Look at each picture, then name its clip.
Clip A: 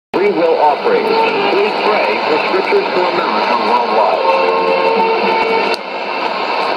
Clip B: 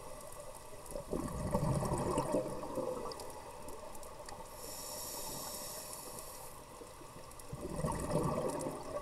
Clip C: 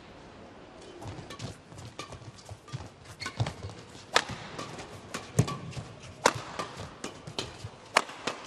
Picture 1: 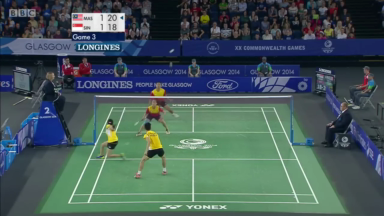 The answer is C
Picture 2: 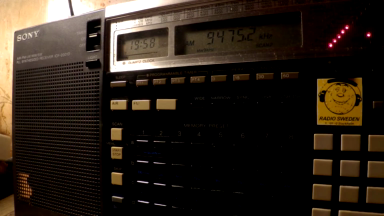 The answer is A